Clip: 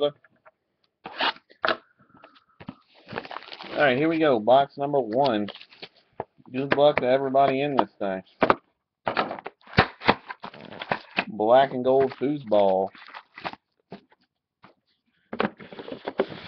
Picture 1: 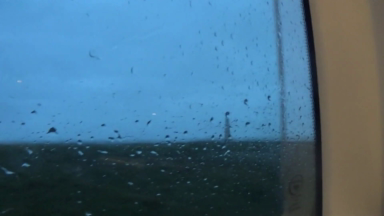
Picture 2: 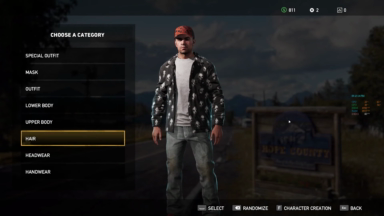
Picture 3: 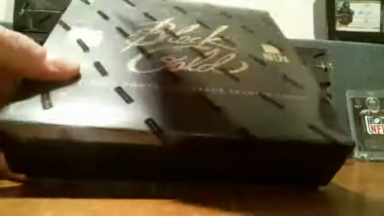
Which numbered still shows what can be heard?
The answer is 3